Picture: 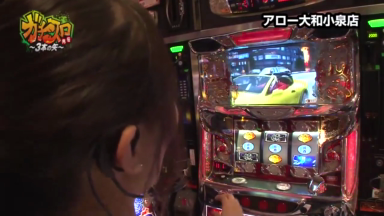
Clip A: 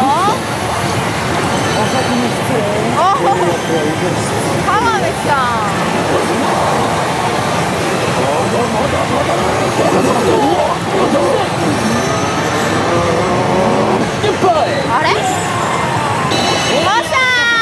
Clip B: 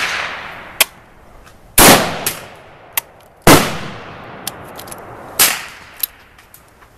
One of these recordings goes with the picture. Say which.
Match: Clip A